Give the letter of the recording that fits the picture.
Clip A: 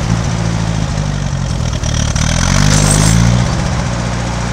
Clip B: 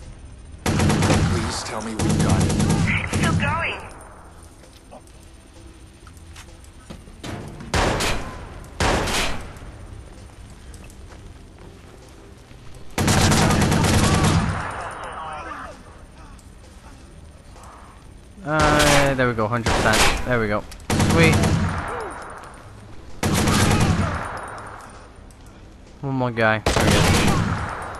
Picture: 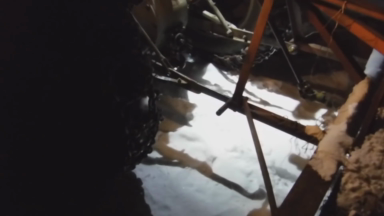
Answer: A